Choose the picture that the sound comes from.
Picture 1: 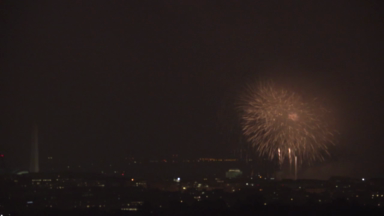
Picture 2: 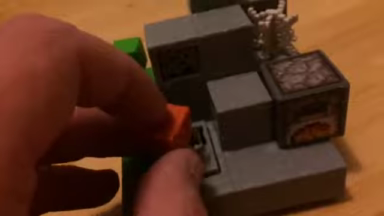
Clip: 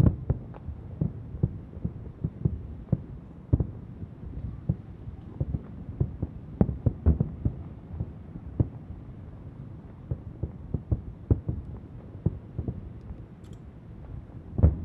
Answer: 1